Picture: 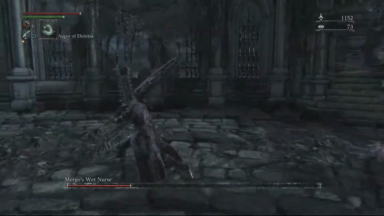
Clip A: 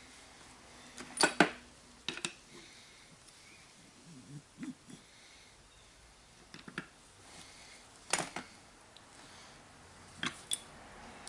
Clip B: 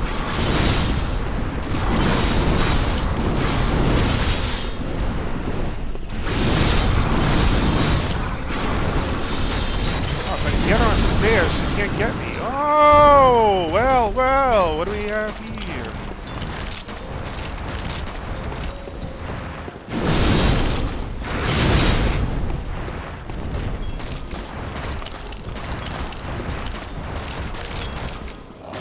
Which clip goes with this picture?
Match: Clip B